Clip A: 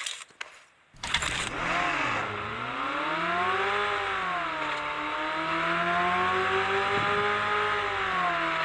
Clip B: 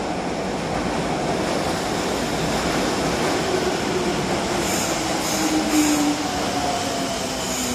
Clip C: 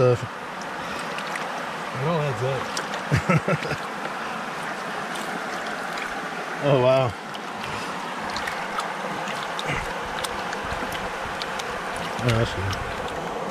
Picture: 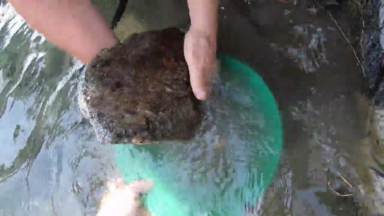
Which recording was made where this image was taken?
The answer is C